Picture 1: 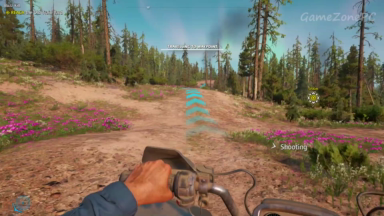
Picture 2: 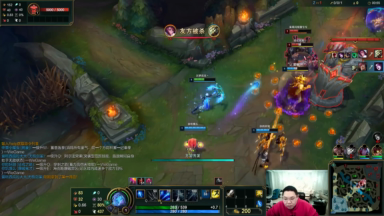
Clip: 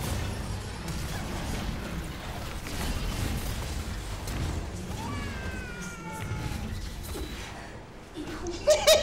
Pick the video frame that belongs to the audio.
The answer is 2